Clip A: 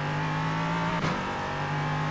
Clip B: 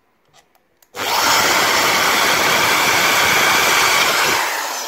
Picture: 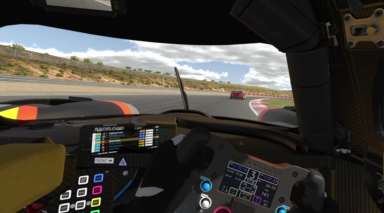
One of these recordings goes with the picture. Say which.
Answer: A